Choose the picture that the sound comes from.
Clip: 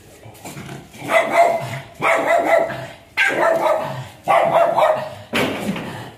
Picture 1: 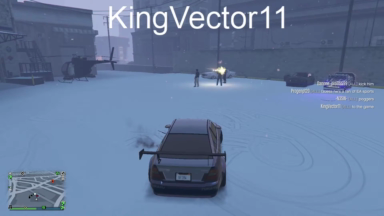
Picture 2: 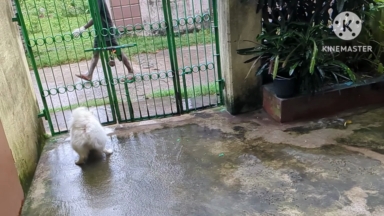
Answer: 2